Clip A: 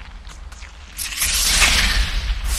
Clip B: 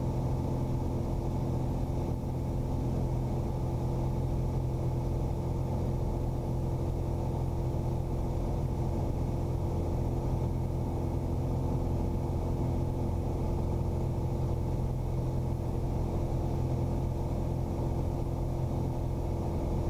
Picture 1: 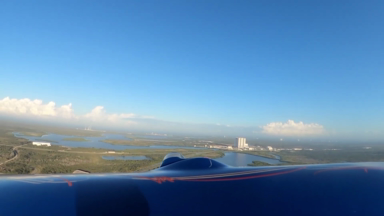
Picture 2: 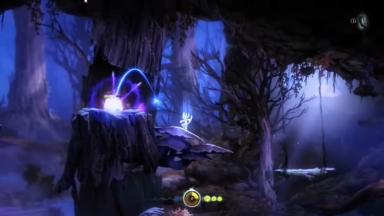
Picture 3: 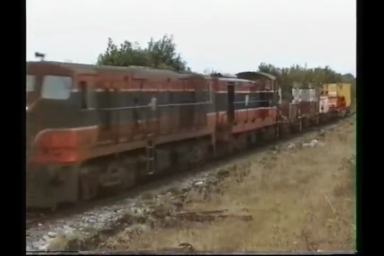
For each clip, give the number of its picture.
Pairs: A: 2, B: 1